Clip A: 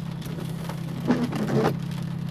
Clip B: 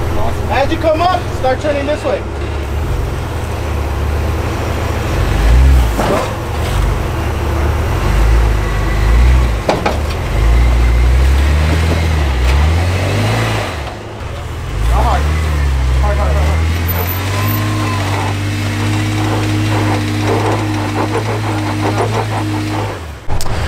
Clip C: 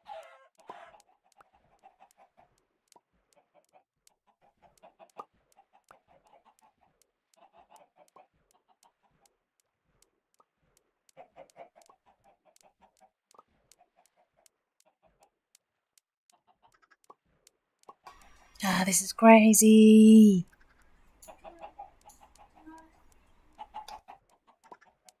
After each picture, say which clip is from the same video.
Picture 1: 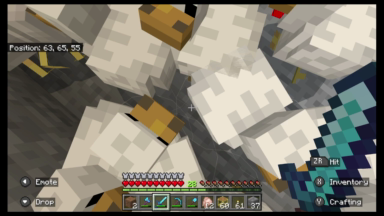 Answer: C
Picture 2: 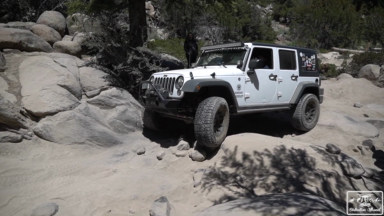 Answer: B